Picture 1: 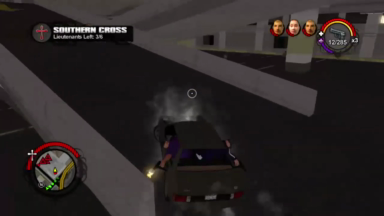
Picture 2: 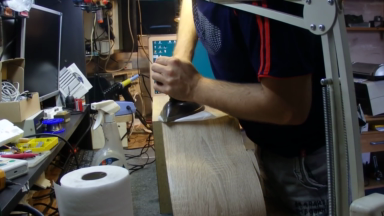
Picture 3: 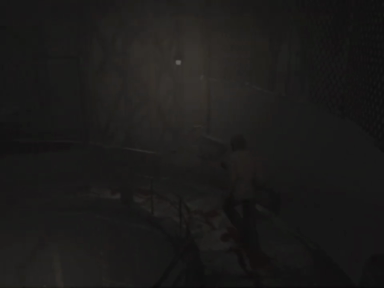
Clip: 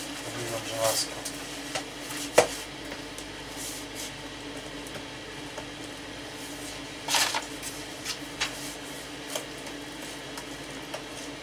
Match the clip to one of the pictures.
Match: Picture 2